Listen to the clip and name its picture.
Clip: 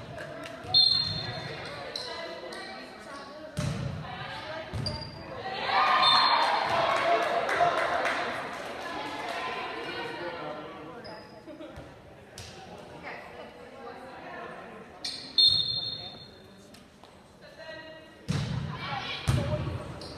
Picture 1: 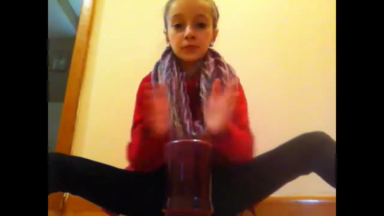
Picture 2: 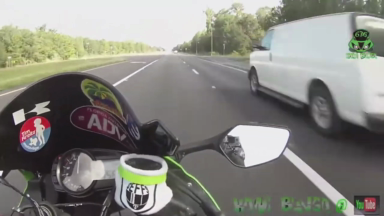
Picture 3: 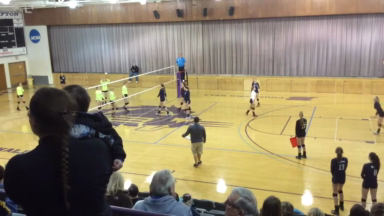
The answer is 3